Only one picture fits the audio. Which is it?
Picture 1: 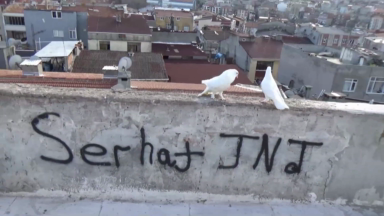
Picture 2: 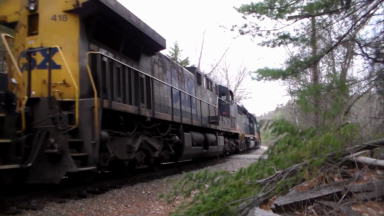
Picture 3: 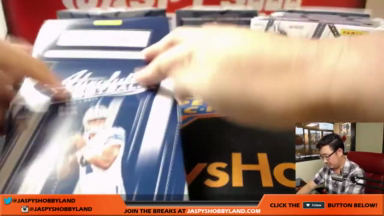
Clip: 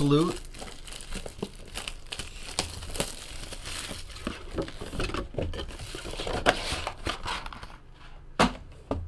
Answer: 3